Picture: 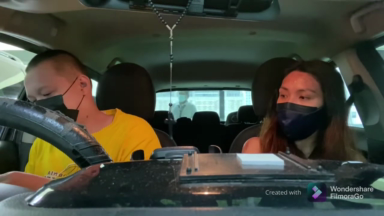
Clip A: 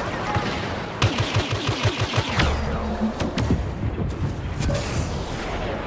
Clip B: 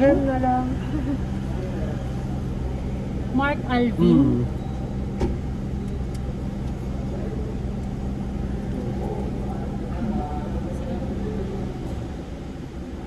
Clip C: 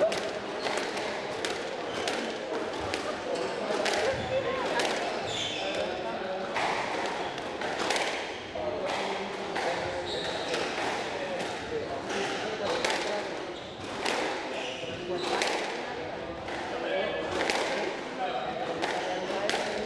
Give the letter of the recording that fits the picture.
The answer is B